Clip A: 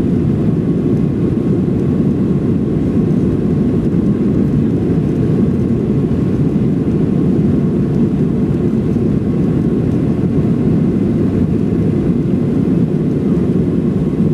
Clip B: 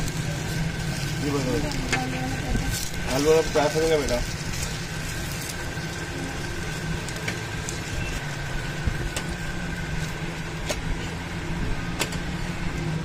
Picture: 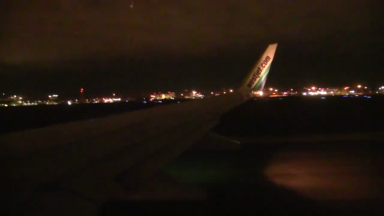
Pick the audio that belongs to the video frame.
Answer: A